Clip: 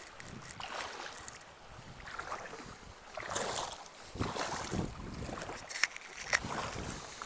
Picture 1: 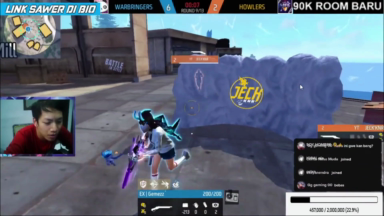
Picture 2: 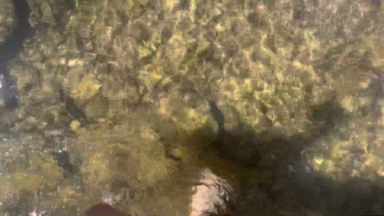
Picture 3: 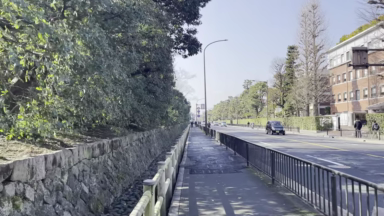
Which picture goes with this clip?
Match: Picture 2